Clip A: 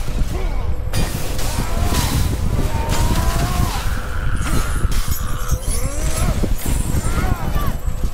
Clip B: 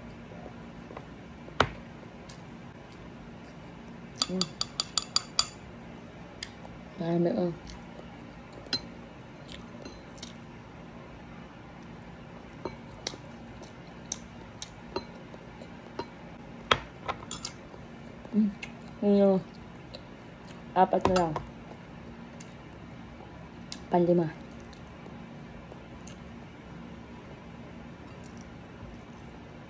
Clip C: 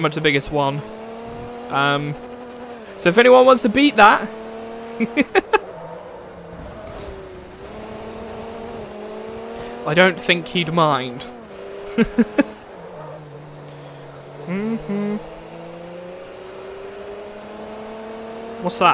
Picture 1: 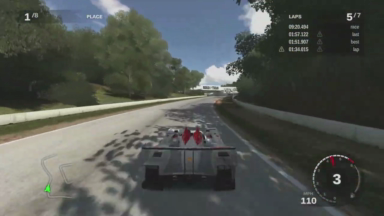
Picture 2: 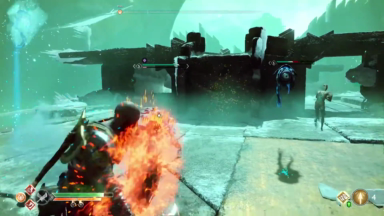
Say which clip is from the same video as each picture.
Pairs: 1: C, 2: A